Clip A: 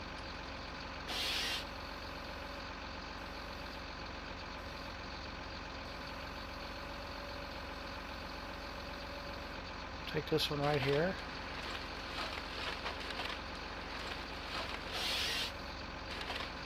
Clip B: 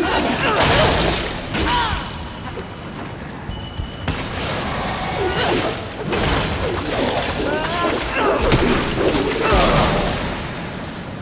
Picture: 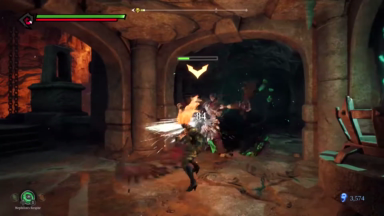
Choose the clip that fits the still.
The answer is B